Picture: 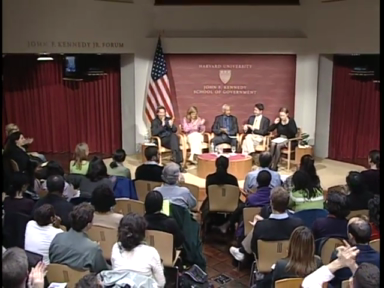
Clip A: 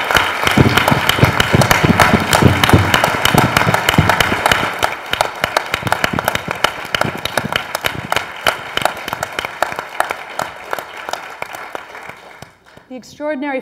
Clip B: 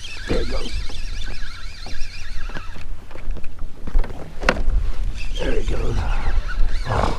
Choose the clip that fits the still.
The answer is A